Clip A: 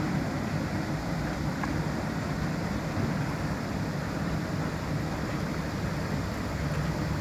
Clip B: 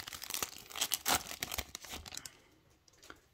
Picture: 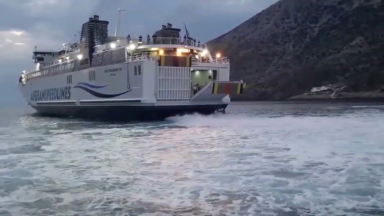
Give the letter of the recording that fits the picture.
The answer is A